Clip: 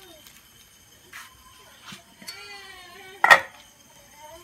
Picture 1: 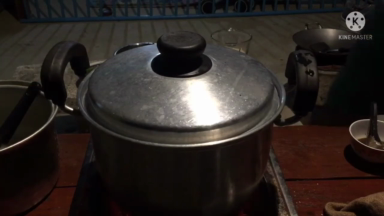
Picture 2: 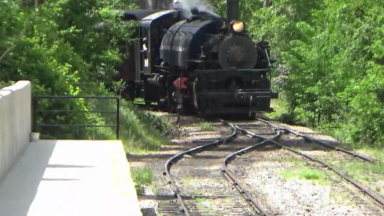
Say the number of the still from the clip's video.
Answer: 1